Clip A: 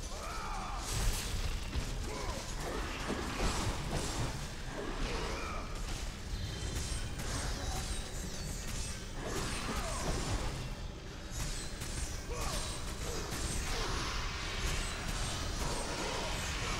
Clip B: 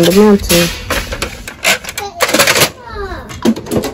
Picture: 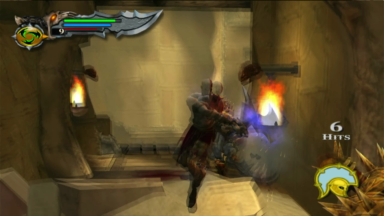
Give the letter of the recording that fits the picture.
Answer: A